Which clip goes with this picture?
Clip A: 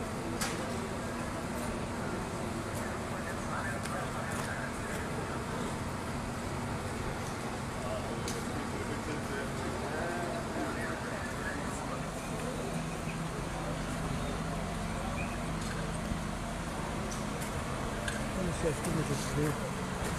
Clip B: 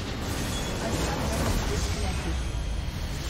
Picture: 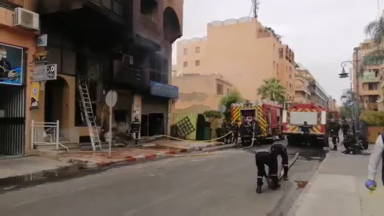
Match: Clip A